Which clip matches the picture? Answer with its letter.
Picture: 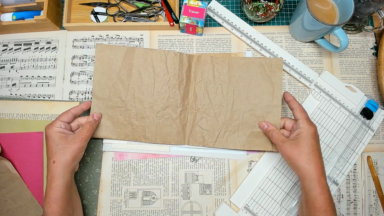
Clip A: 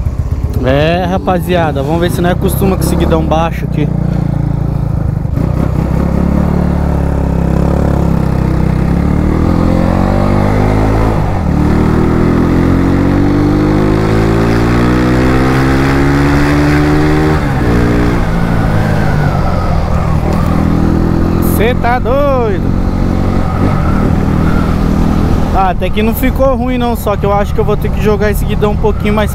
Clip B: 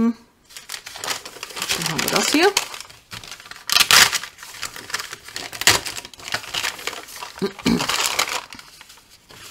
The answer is B